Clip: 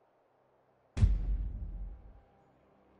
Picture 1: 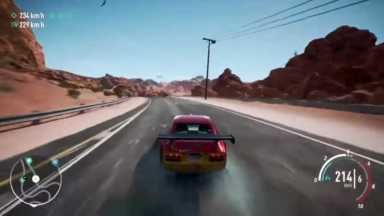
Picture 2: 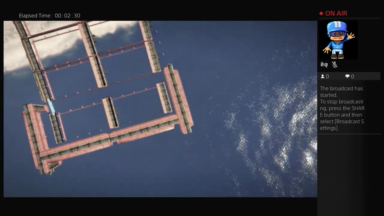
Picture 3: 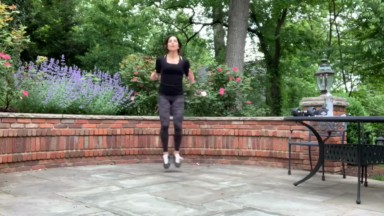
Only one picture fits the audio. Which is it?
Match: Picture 2